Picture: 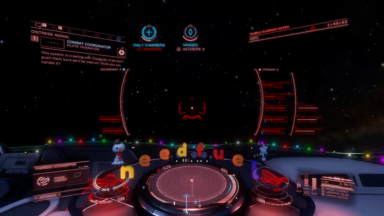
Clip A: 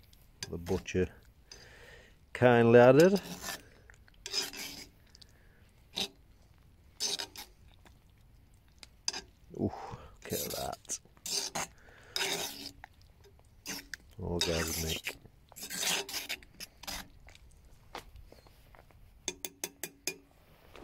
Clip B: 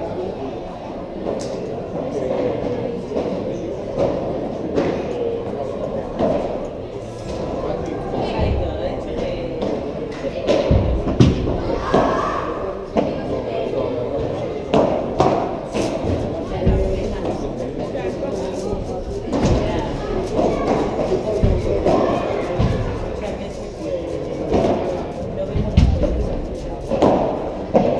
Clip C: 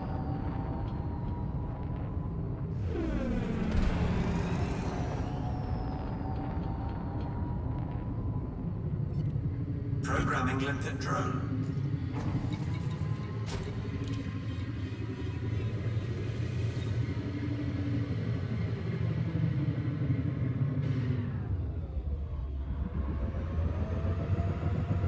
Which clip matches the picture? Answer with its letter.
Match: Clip C